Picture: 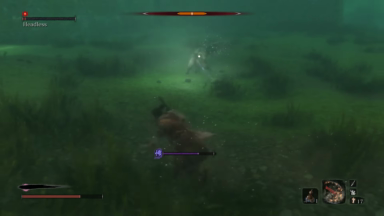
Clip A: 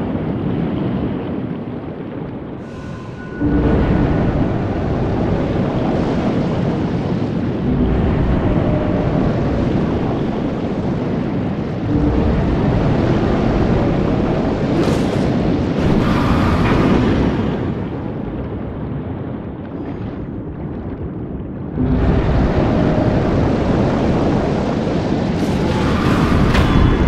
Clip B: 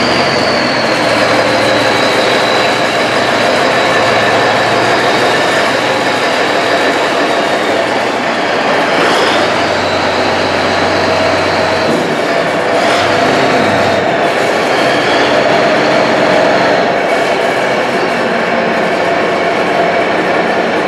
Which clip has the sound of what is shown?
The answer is A